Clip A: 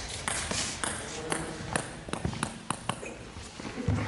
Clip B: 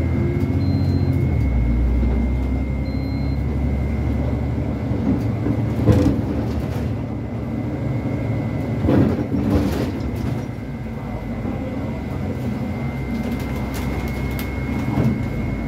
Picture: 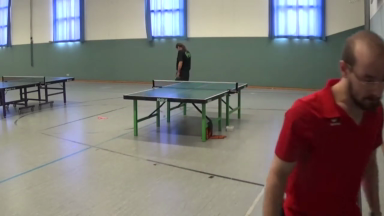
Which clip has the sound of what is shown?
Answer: A